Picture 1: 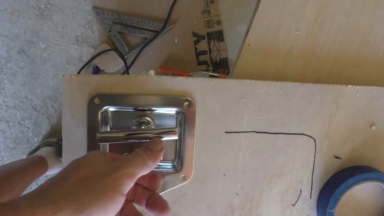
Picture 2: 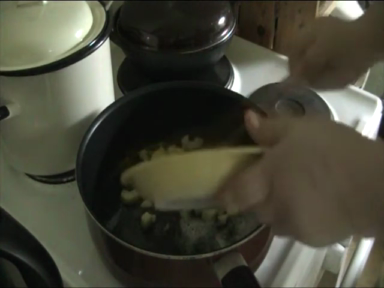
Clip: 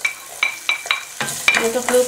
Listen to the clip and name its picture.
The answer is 2